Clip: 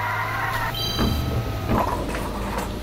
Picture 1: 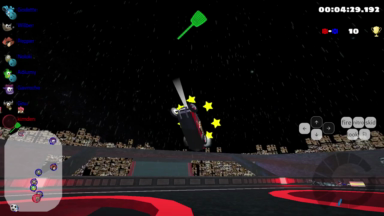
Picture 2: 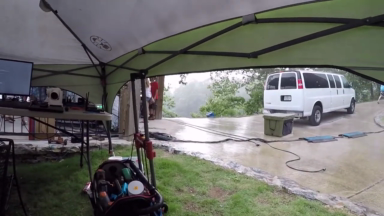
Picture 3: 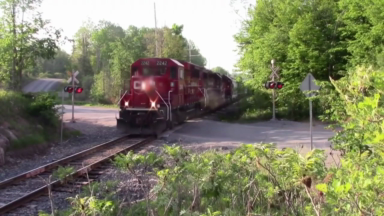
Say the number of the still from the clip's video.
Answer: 1